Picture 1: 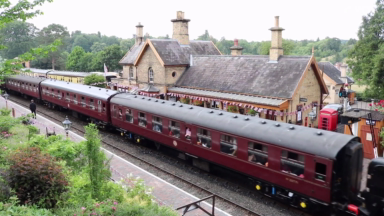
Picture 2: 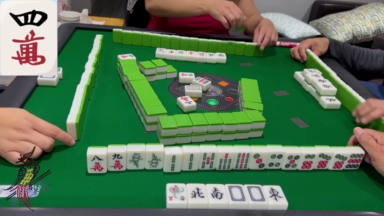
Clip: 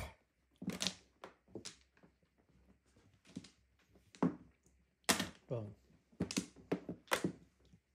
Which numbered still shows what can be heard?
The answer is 2